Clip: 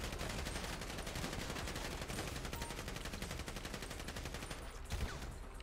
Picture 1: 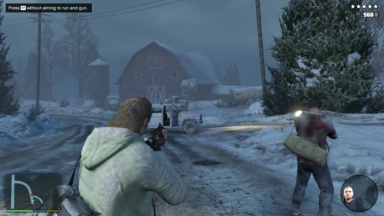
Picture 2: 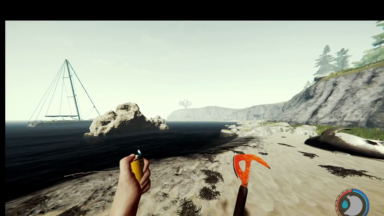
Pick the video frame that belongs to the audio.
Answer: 1